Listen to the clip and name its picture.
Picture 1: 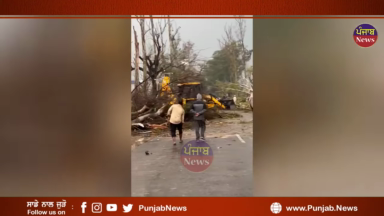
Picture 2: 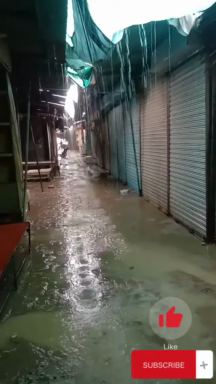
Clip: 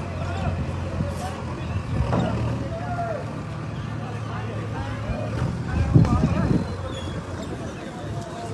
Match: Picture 1